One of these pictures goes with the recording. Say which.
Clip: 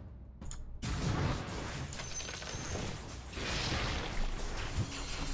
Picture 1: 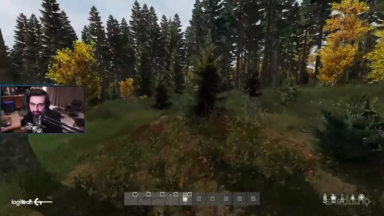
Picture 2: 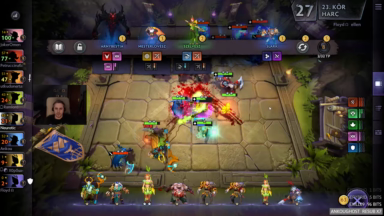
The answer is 2